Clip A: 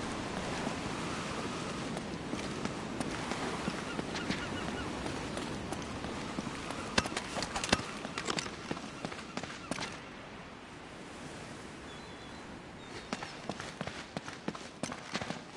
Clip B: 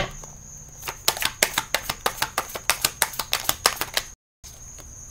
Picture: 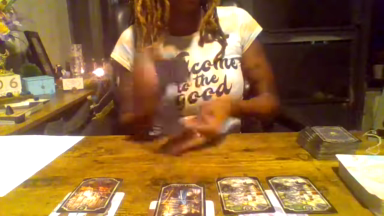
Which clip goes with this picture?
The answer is B